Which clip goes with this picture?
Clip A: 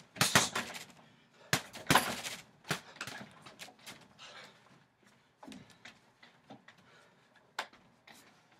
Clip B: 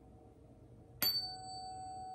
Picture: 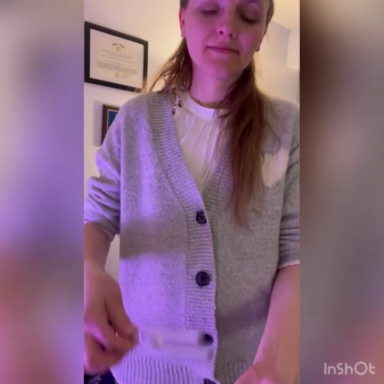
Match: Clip B